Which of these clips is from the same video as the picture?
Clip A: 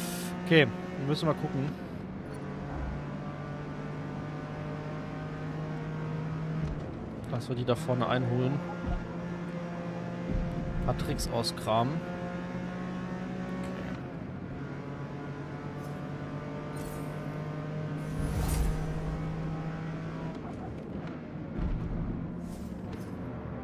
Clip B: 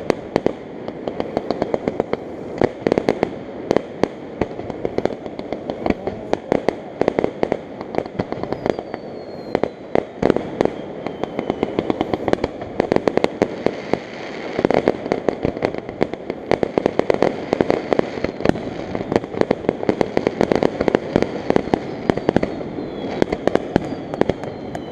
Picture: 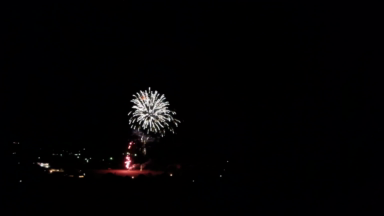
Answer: B